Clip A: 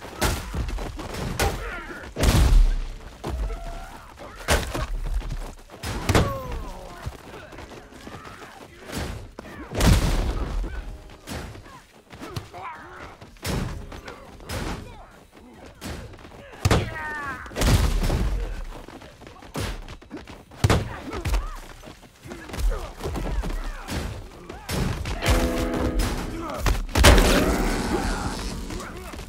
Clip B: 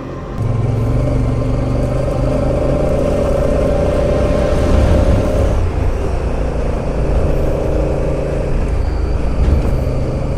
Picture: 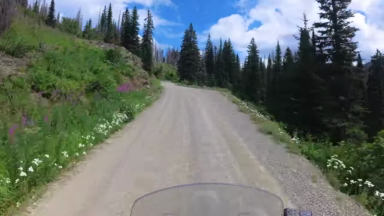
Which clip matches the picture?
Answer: B